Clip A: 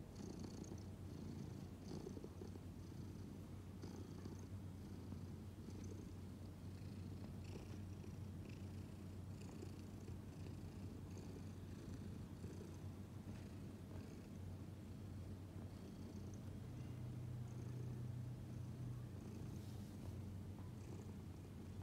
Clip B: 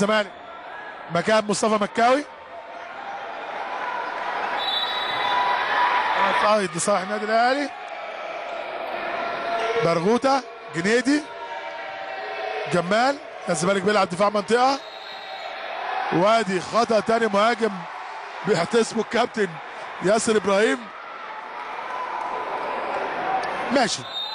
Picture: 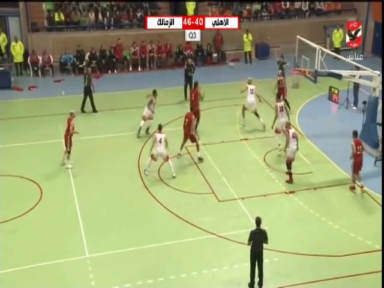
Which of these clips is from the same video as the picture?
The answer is B